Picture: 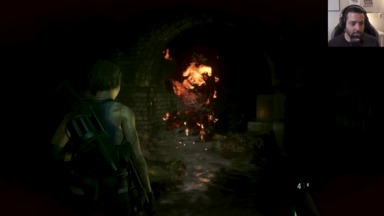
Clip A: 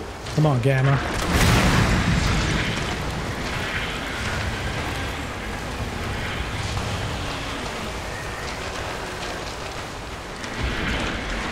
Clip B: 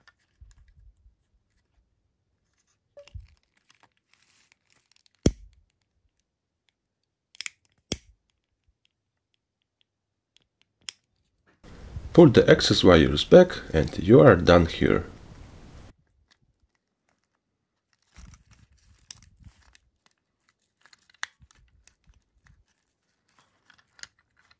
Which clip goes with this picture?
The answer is A